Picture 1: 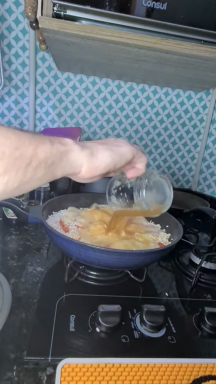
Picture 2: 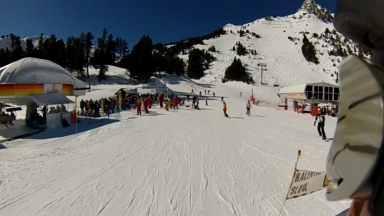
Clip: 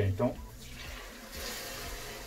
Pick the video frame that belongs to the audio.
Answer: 1